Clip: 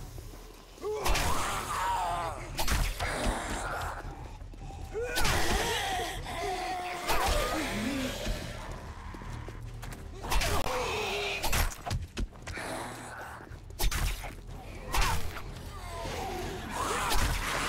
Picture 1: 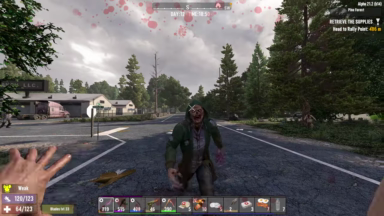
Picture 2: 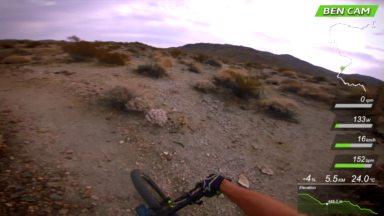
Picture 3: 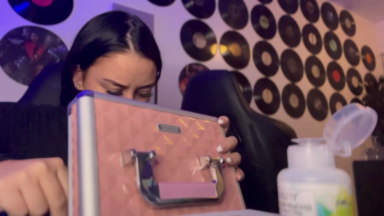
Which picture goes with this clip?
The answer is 1